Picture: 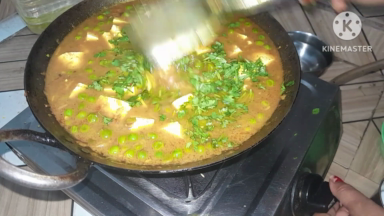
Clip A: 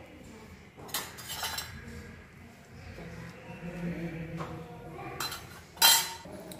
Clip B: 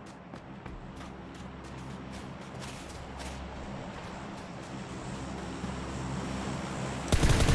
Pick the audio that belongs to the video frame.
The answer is A